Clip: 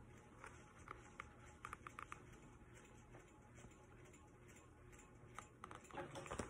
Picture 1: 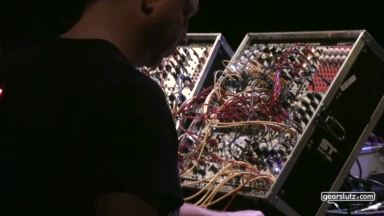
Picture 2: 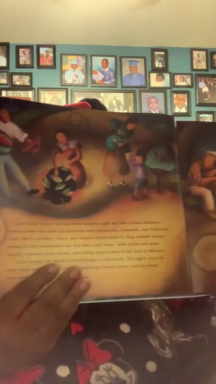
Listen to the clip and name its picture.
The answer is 2